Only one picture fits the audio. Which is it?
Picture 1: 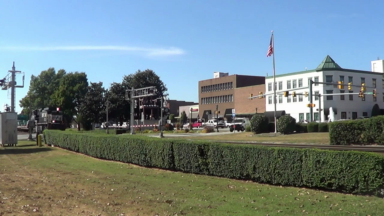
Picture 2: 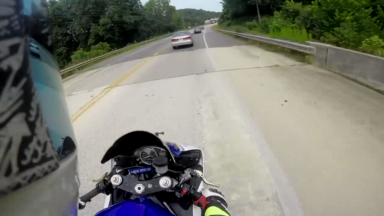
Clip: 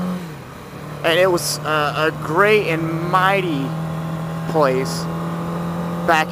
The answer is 2